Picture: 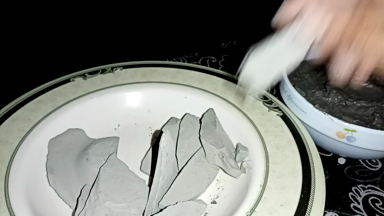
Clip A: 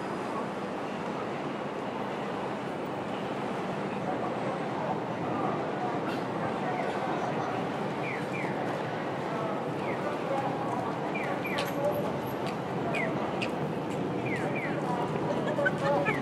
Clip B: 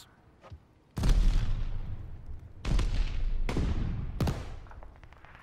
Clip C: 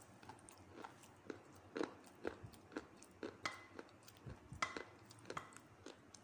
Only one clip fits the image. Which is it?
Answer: C